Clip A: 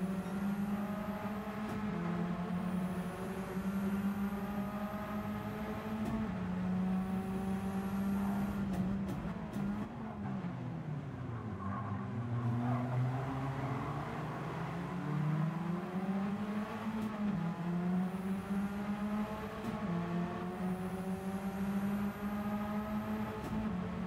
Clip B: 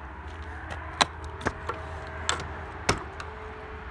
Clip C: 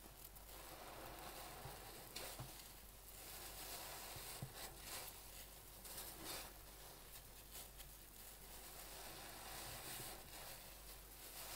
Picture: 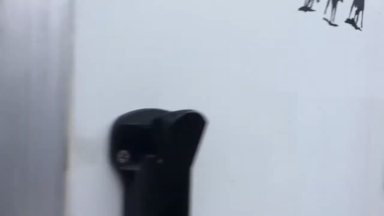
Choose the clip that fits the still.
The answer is B